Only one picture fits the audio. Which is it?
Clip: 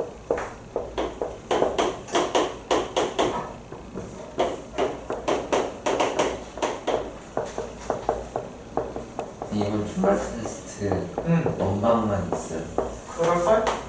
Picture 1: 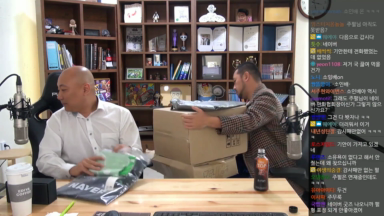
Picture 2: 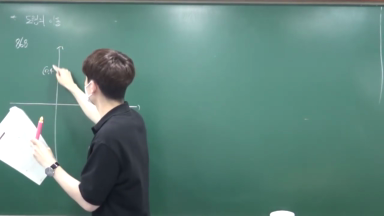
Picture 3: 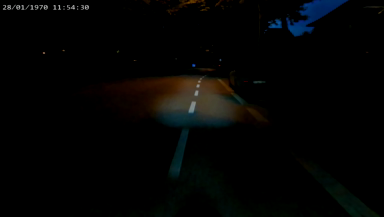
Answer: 2